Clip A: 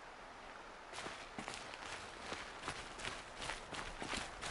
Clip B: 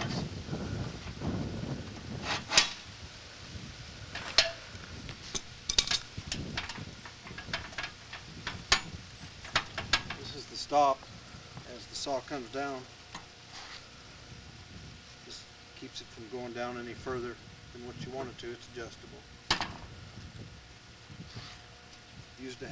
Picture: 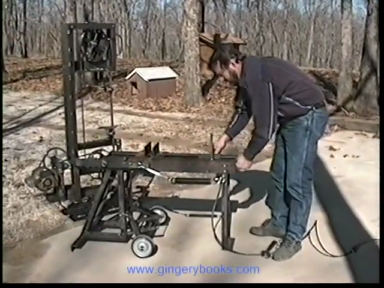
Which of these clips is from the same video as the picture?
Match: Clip B